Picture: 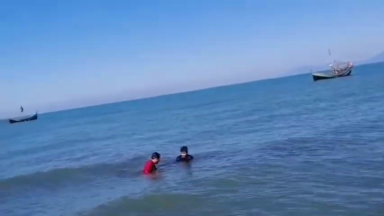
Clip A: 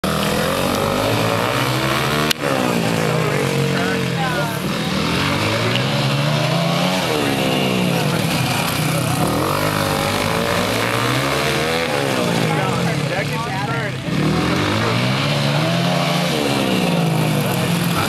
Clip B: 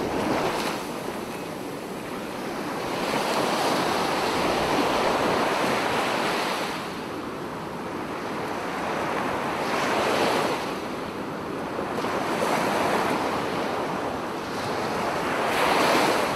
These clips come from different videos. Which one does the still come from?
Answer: B